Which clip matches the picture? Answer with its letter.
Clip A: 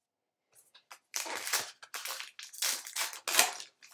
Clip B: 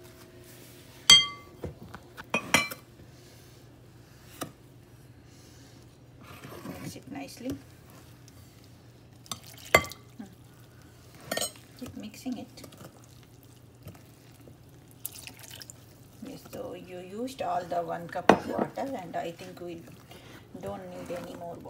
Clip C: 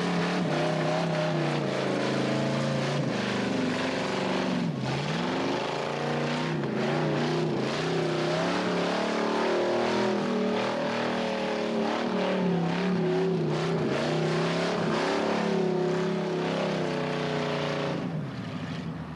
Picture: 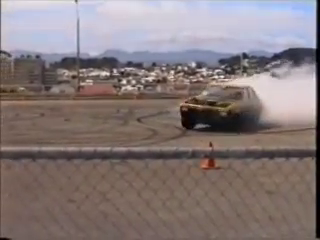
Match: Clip C